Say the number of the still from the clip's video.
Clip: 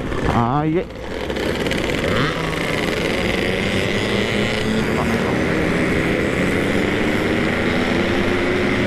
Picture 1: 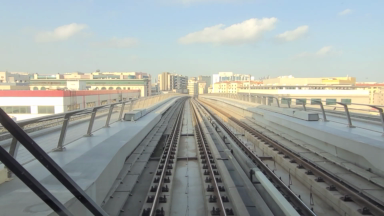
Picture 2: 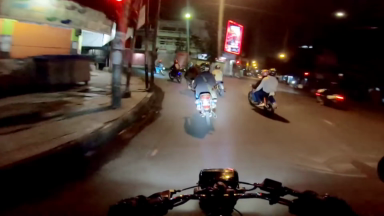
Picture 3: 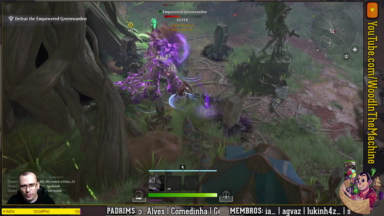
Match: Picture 2